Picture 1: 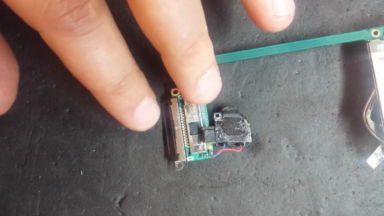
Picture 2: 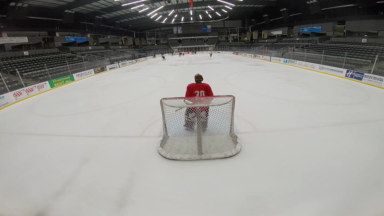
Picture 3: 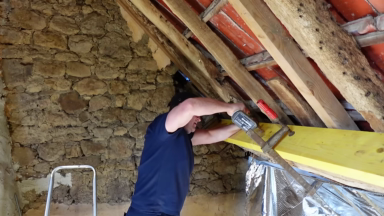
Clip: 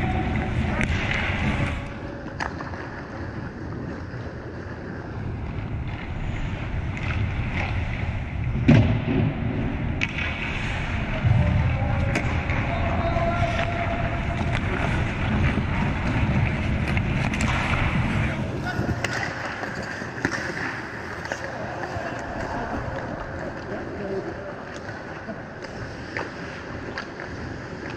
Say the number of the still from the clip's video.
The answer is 2